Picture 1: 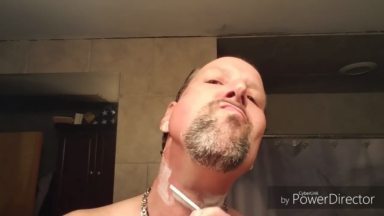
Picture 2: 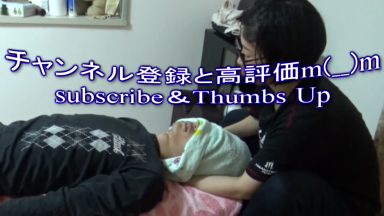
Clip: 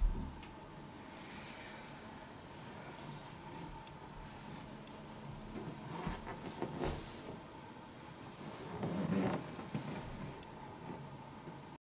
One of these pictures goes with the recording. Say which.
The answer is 2